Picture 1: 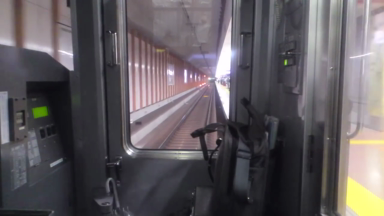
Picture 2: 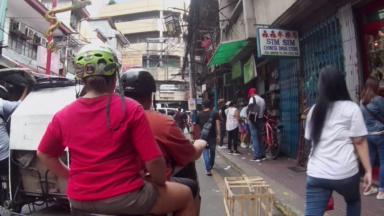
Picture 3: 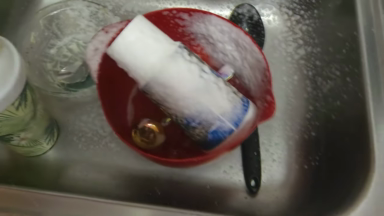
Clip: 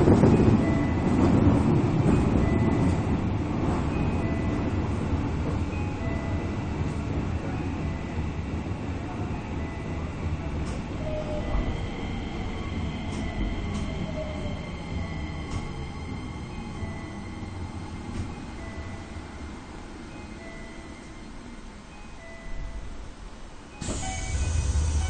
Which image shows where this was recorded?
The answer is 1